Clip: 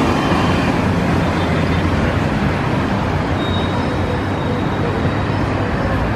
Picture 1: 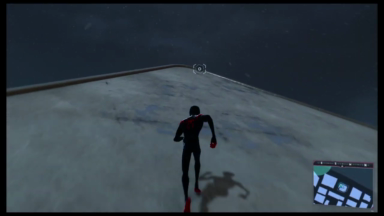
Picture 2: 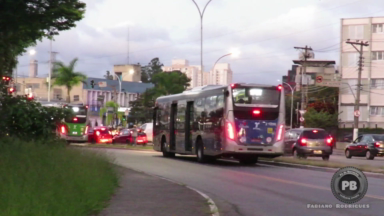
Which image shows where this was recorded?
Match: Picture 2